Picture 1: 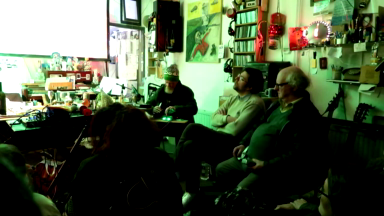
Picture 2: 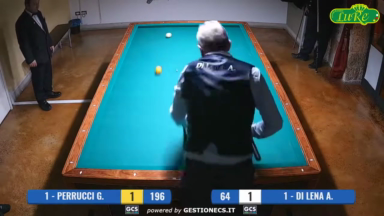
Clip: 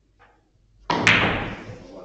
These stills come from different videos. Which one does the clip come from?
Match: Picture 2